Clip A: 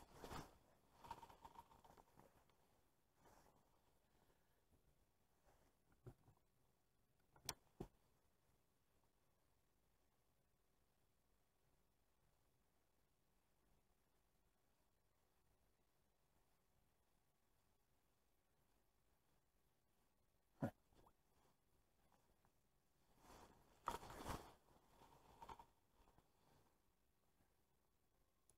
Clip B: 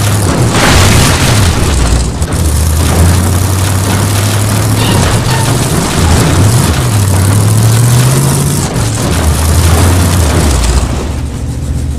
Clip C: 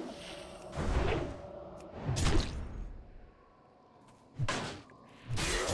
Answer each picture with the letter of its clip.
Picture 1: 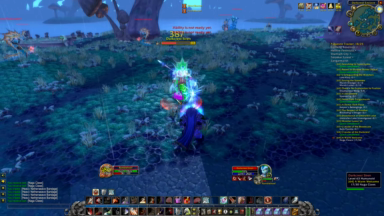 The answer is C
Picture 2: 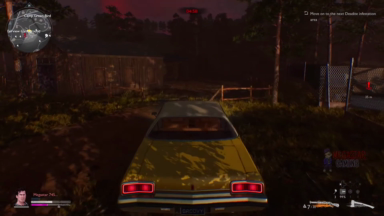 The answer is B